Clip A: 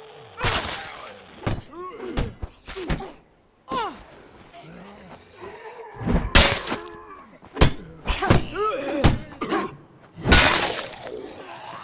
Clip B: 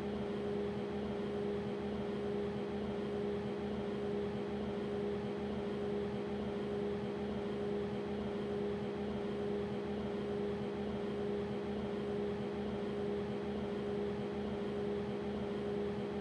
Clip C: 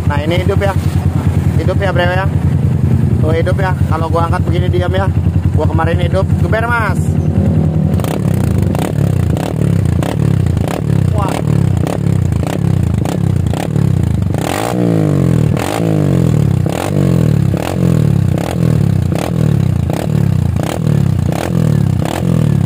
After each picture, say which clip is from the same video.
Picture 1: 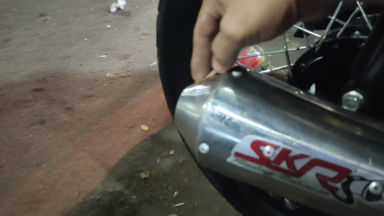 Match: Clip C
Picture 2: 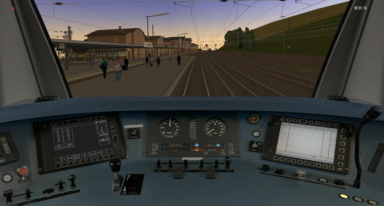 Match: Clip B